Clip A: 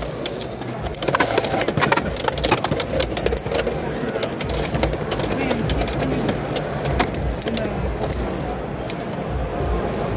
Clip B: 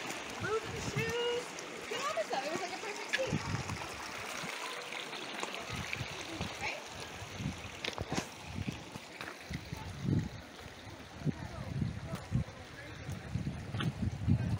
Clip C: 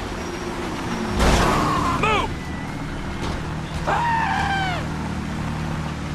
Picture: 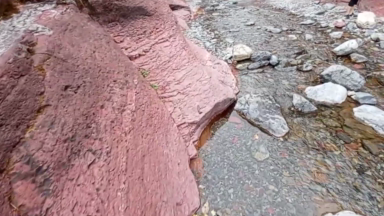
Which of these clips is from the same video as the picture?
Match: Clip B